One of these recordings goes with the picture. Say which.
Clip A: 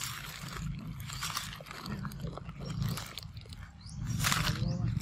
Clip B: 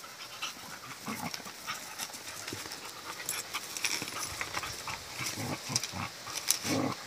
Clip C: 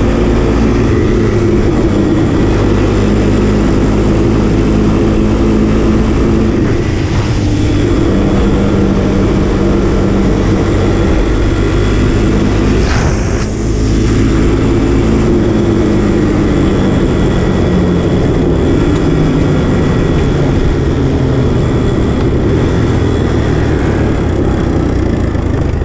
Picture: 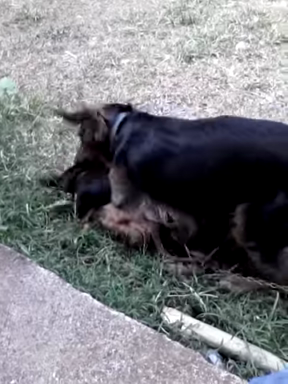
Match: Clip B